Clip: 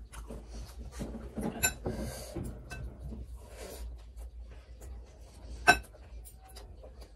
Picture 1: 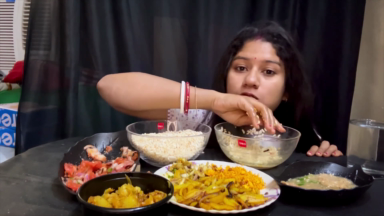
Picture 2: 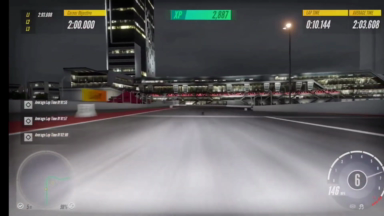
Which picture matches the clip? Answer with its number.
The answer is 1